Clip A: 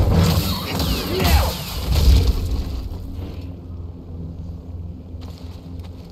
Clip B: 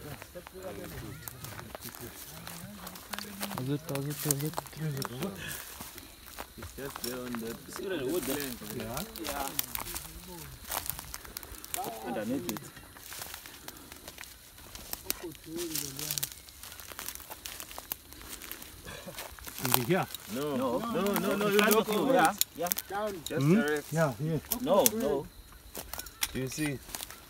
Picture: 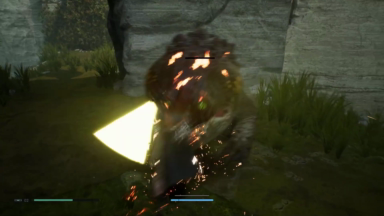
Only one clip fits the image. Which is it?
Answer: A